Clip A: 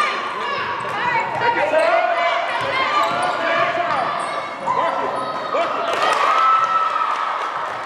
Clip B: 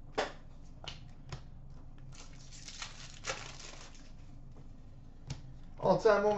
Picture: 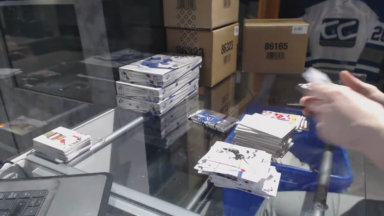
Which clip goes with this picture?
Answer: B